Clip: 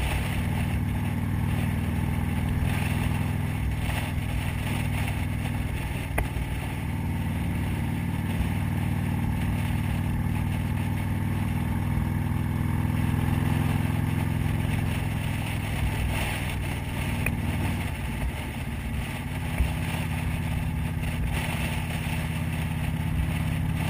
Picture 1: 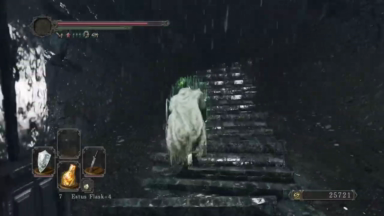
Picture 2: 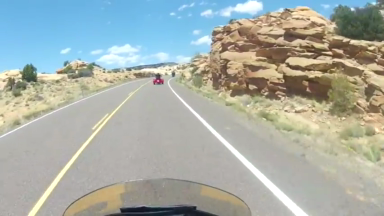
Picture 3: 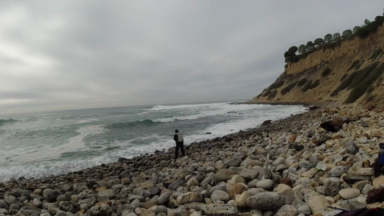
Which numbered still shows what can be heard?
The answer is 2